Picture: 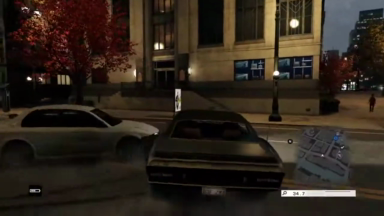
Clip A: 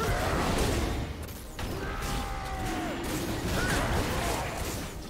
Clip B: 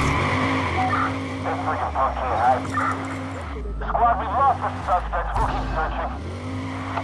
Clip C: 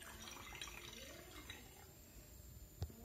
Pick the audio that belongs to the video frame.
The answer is B